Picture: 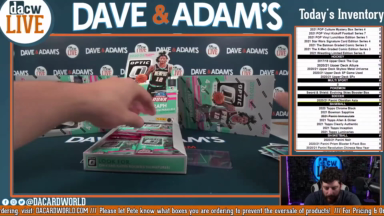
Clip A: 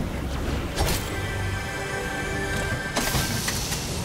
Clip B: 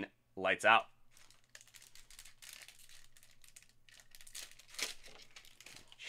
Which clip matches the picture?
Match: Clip B